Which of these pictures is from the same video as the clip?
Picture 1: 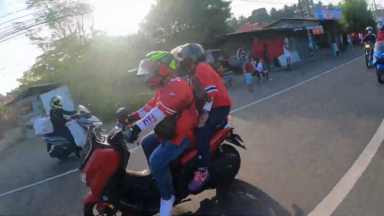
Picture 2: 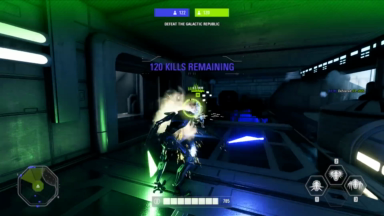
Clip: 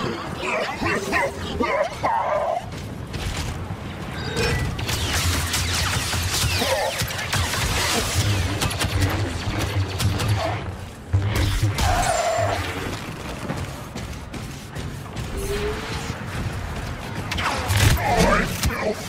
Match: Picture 2